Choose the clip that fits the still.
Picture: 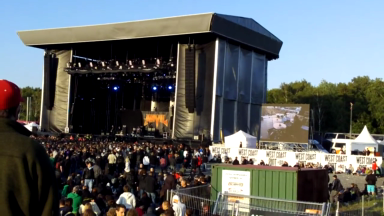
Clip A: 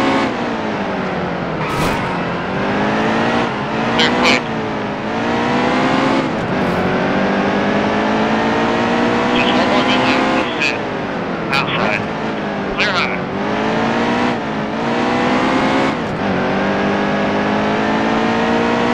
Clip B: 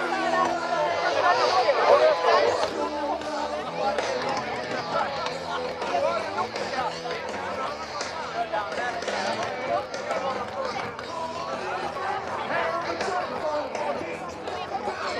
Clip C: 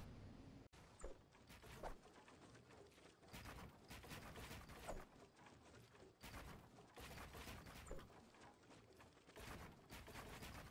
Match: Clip B